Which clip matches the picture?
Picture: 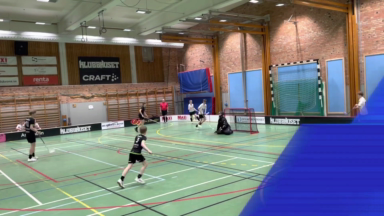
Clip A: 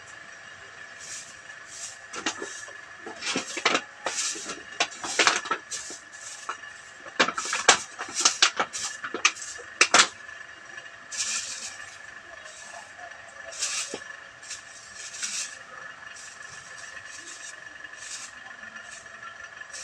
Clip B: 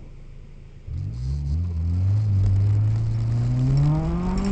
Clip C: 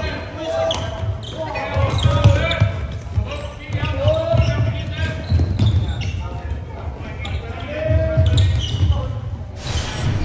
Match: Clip C